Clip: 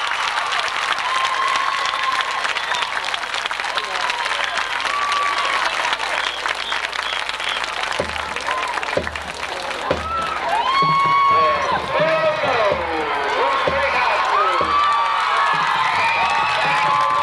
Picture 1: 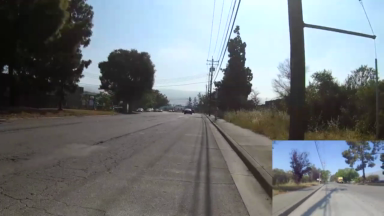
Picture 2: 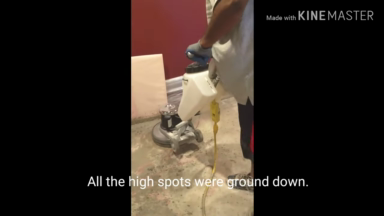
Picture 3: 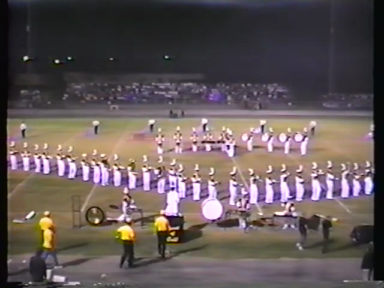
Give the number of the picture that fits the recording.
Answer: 3